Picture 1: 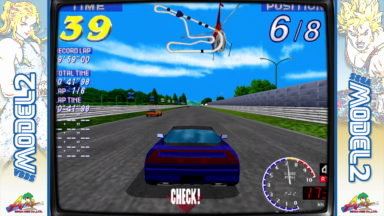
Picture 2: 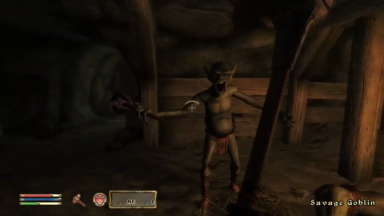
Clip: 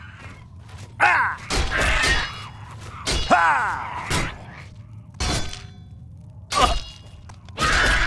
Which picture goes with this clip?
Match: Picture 2